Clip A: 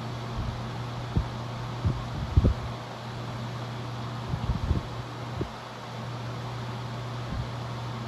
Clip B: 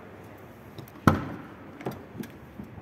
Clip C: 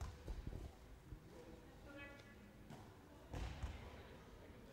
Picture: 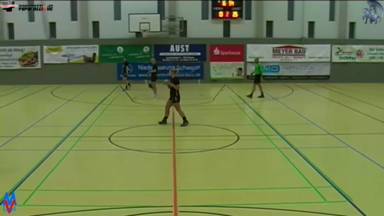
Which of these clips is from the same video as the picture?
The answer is C